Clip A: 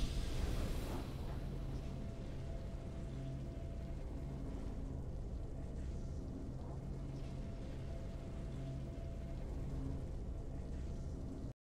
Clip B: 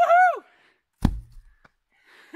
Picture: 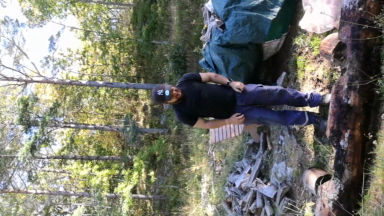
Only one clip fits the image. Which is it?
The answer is B